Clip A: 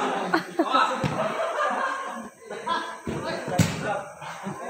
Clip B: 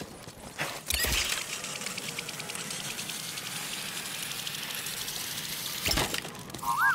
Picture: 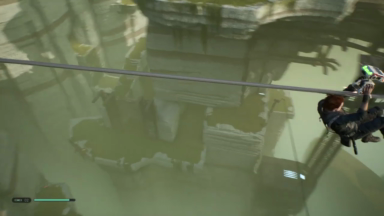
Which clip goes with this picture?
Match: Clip B